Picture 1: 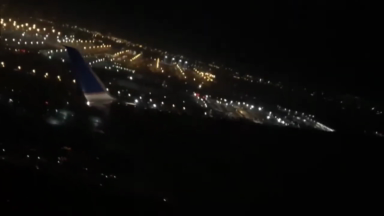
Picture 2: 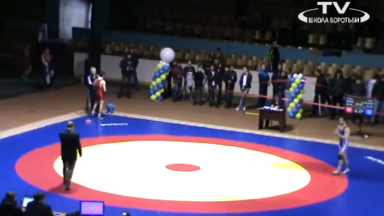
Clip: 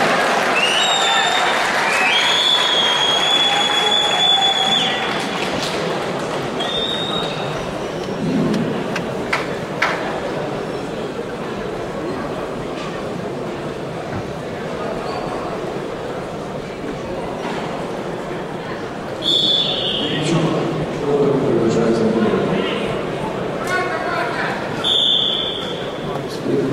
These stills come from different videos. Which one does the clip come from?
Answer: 2